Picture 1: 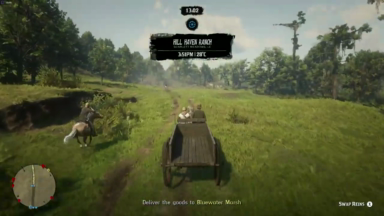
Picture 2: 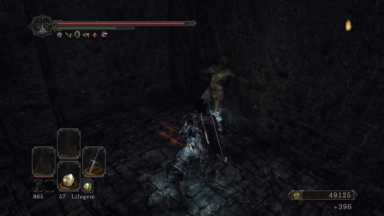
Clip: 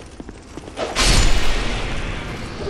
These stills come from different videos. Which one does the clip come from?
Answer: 2